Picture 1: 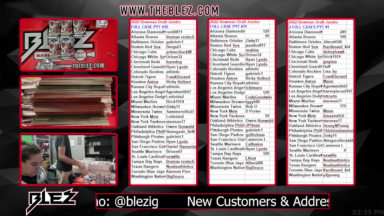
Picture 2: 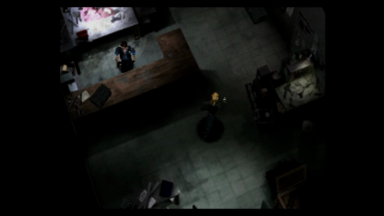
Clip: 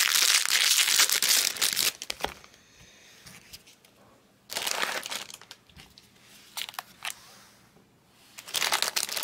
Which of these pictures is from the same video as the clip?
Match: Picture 1